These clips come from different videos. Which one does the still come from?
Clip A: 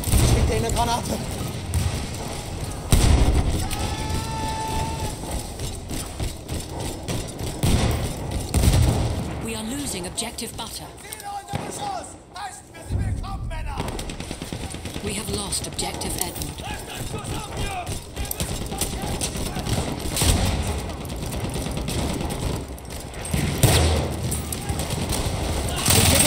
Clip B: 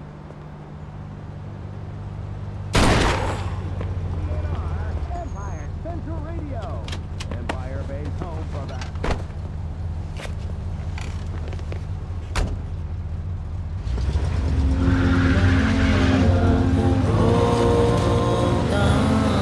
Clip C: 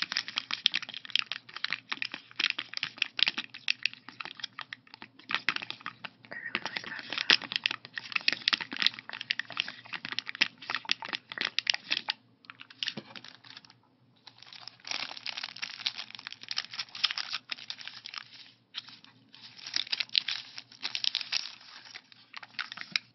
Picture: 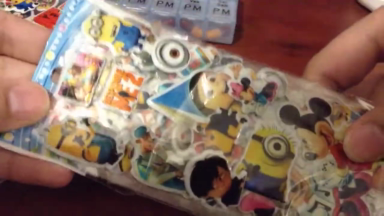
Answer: C